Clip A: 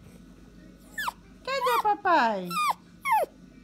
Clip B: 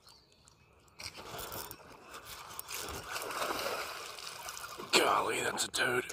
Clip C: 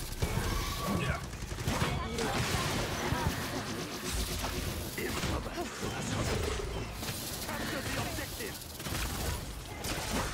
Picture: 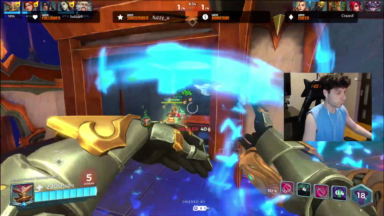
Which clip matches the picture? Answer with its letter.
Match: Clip C